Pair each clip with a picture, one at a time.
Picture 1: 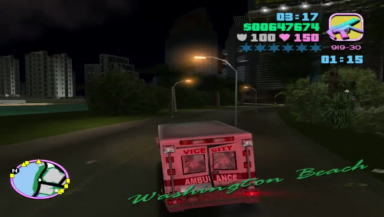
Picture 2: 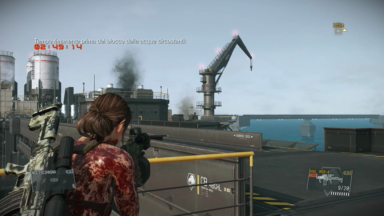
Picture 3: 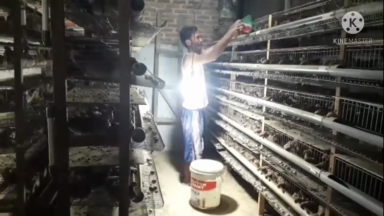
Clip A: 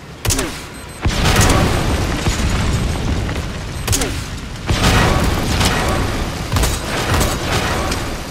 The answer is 2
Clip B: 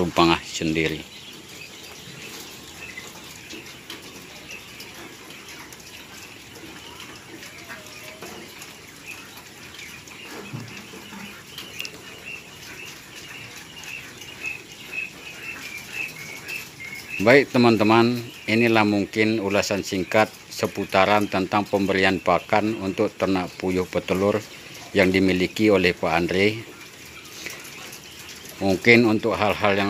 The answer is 3